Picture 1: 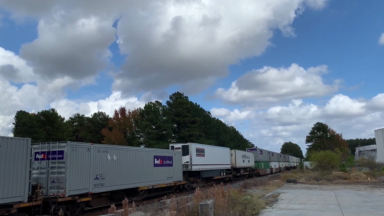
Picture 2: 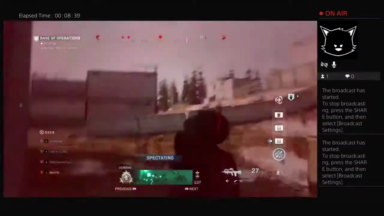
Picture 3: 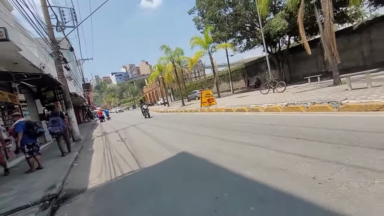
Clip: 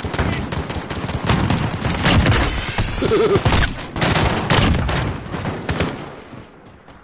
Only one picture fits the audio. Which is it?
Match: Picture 2